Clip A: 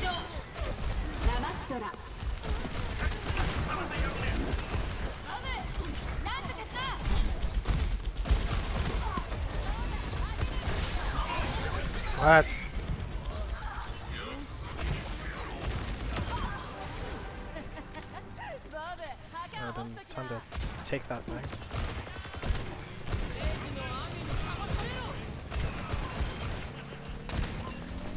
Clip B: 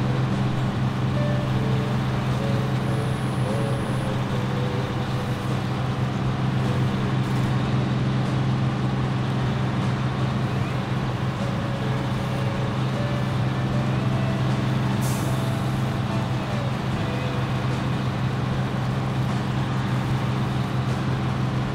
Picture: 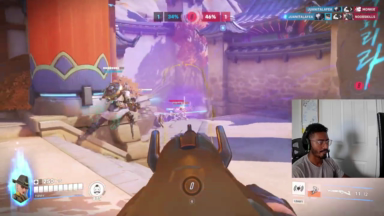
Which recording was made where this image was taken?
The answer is A